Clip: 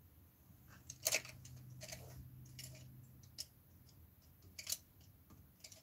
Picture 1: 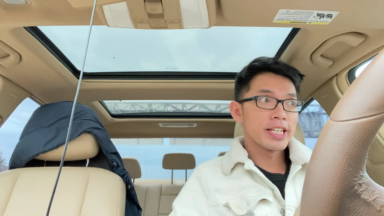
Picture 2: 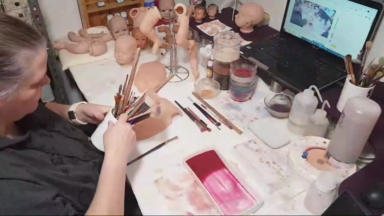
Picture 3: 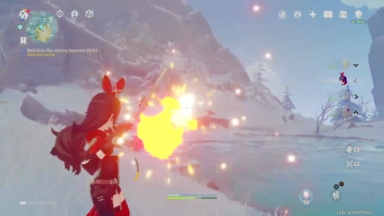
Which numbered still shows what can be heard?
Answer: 2